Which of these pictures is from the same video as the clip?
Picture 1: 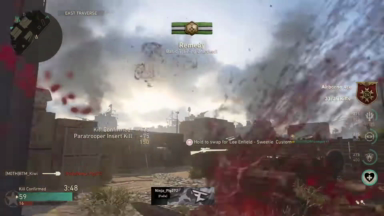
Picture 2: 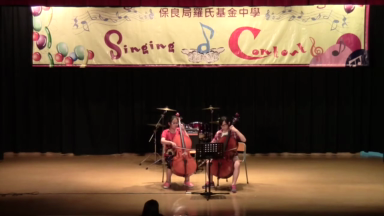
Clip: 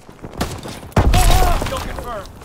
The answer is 1